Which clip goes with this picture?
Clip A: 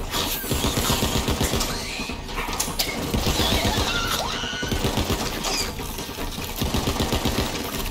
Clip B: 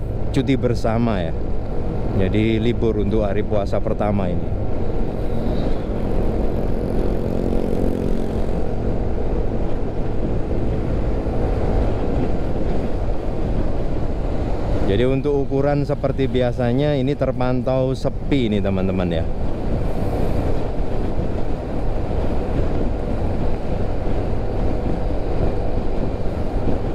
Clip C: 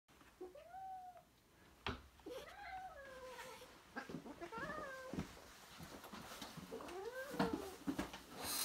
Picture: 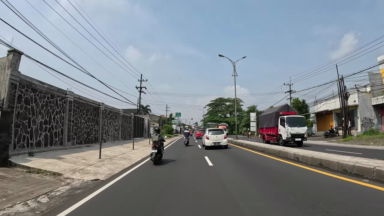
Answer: B